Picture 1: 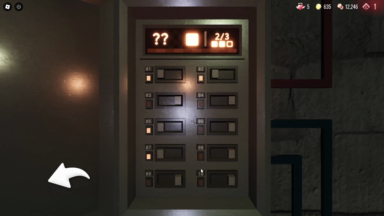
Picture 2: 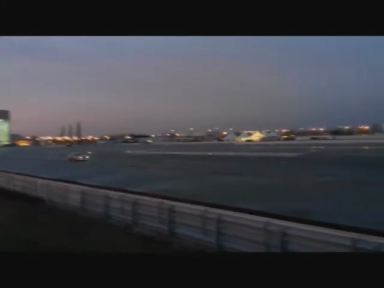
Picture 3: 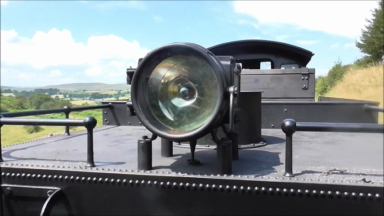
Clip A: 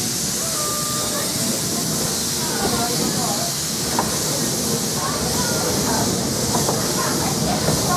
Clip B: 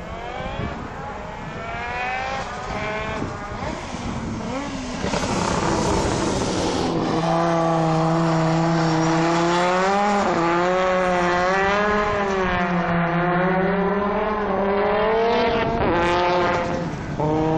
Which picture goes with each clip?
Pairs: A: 3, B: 2